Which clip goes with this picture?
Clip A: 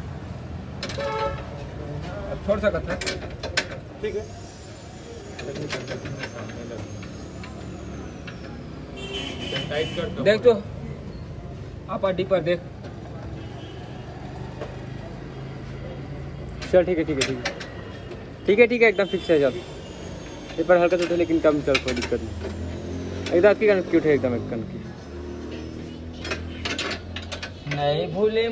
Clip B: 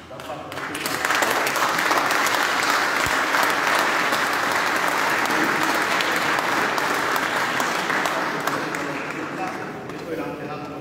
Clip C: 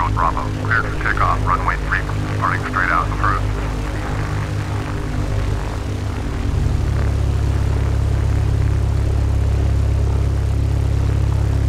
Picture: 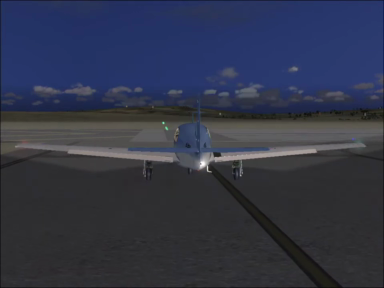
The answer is C